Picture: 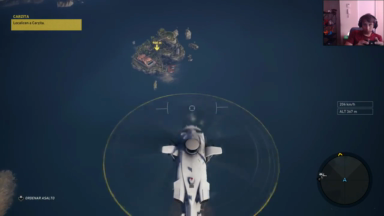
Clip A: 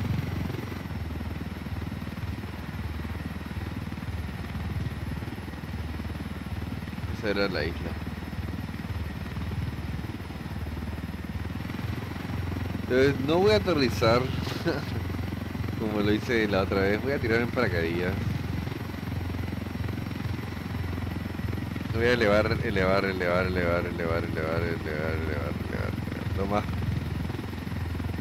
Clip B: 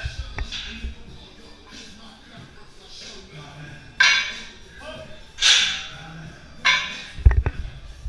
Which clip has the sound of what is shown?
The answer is A